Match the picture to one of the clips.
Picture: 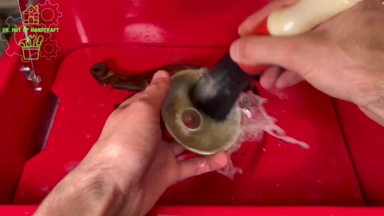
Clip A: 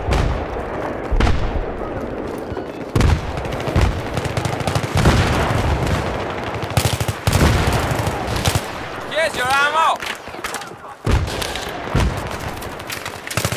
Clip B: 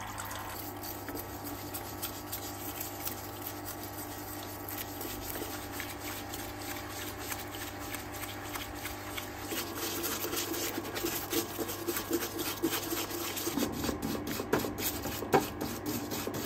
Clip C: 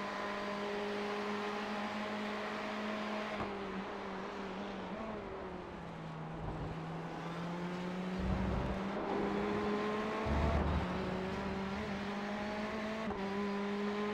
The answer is B